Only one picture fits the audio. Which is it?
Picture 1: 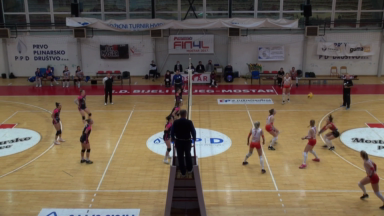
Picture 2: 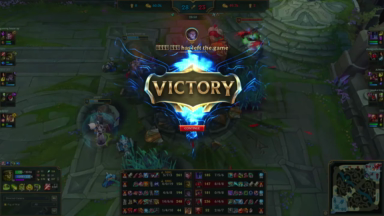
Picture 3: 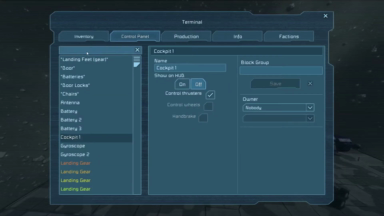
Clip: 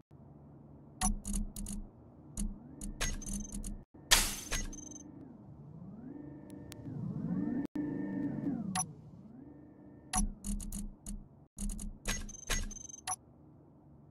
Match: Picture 3